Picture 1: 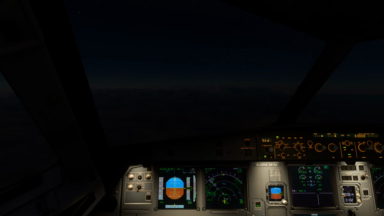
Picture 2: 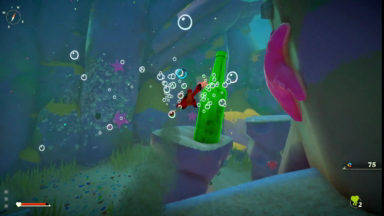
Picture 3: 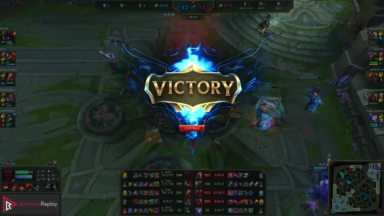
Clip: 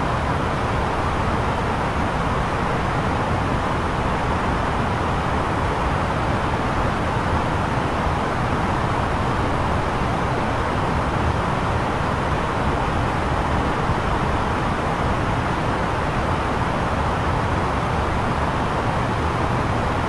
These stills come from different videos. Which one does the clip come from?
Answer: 1